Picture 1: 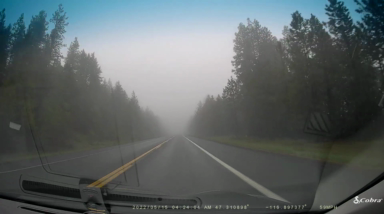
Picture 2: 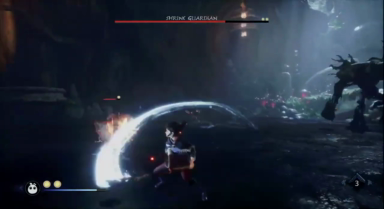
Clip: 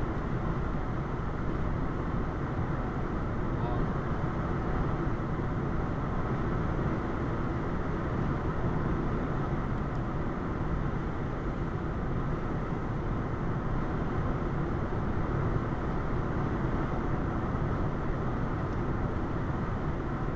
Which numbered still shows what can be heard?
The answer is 1